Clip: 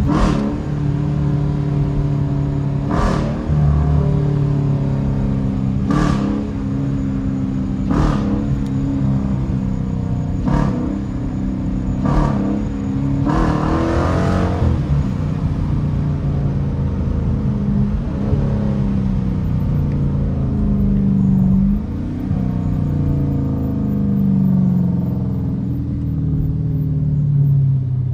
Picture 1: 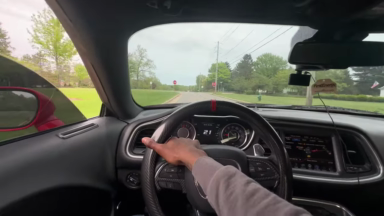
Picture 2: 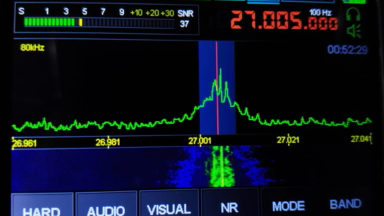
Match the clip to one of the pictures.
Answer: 1